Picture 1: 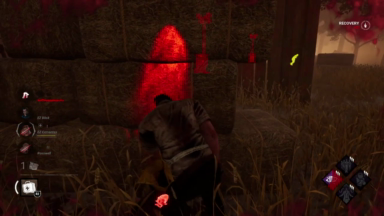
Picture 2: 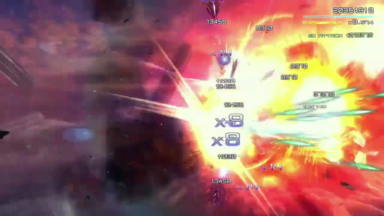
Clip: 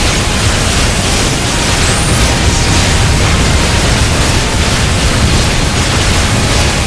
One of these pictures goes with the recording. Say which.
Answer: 2